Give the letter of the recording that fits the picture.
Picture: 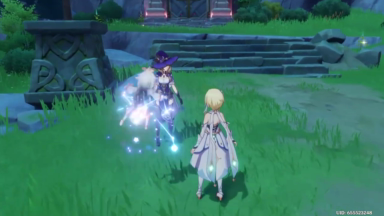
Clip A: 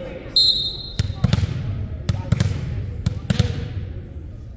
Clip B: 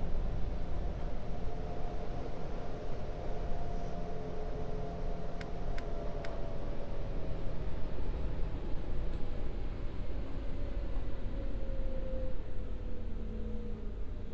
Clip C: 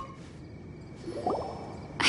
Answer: C